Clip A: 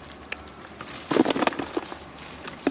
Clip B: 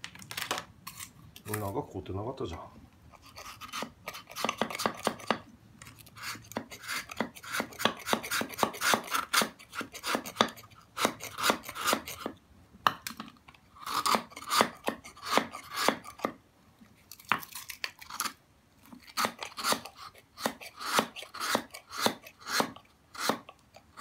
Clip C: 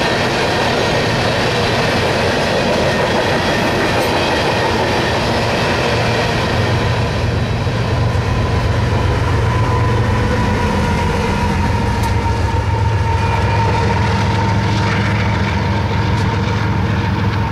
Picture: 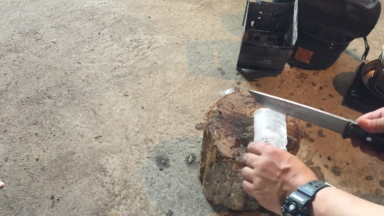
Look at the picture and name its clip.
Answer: B